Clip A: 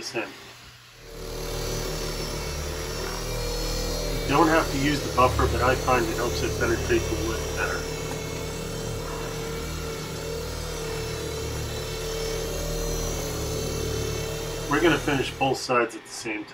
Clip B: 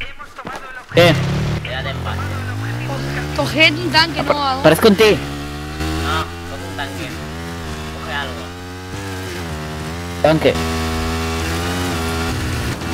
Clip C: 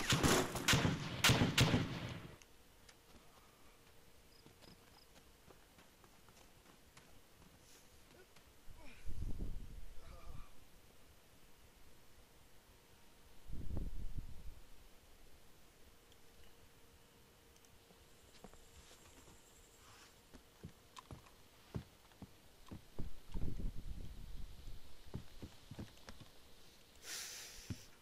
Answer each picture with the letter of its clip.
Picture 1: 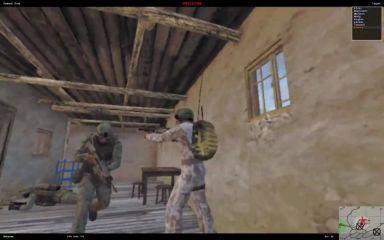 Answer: C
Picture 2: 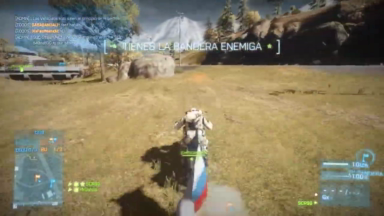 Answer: B